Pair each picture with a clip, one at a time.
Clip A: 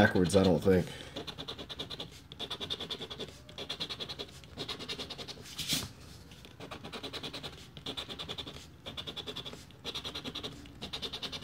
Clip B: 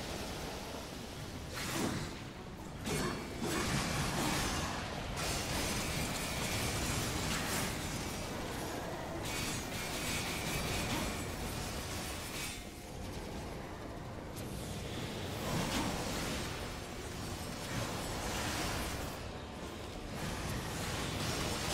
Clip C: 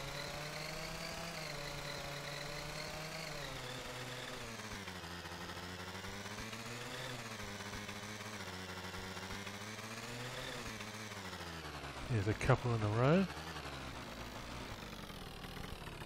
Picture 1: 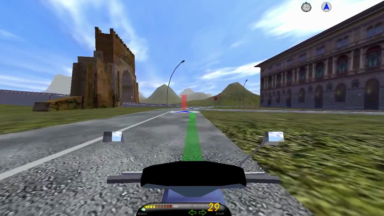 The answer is C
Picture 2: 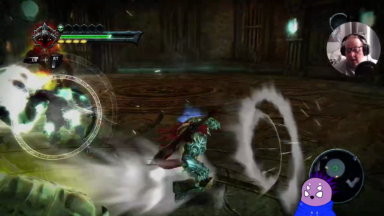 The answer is B